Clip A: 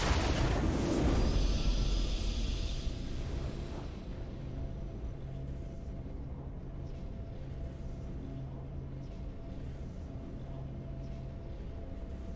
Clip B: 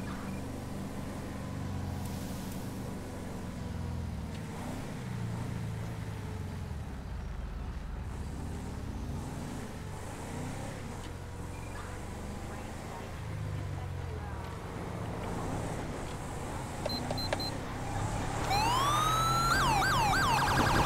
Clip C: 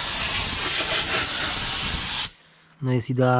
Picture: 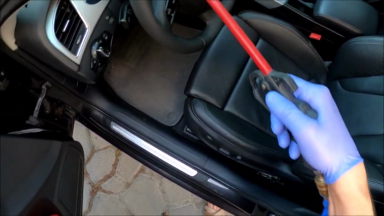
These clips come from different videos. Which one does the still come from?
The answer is C